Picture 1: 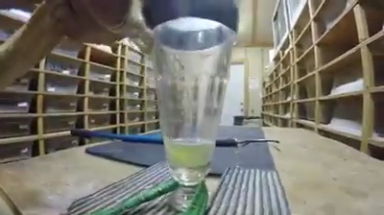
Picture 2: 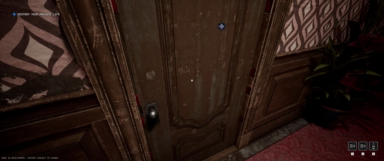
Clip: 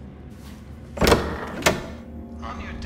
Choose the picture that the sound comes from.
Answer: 2